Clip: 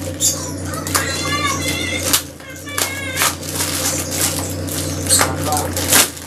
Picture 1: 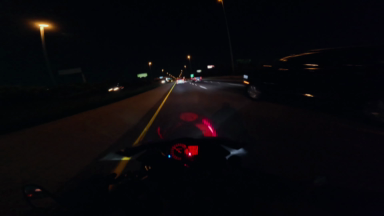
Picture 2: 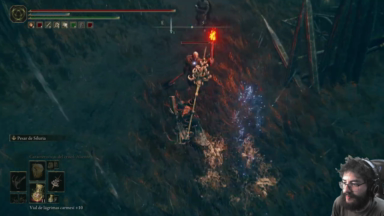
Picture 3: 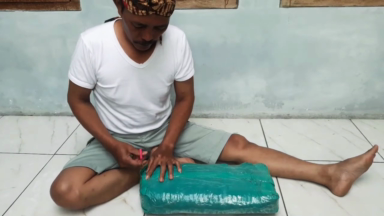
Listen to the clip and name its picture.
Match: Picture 3